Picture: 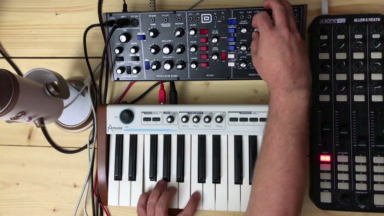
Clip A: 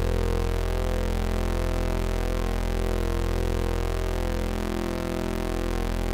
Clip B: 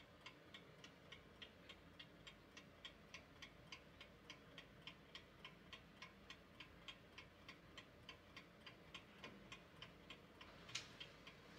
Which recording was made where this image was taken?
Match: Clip A